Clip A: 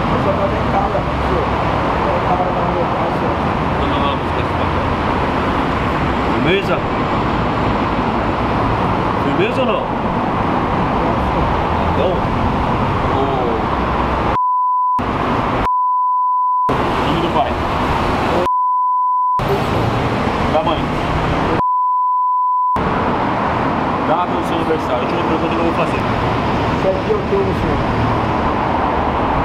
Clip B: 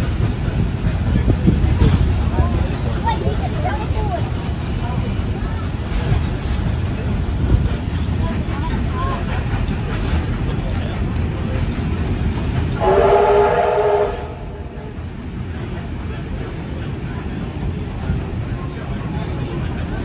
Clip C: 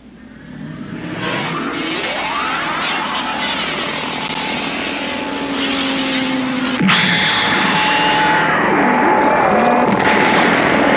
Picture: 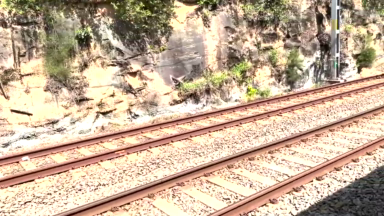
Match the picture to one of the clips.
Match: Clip B